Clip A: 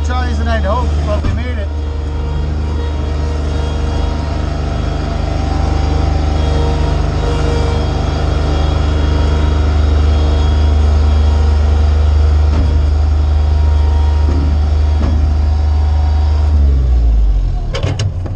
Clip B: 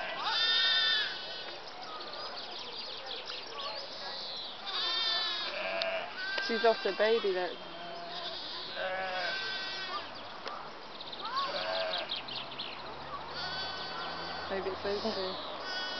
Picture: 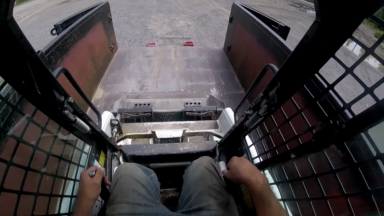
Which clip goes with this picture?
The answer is A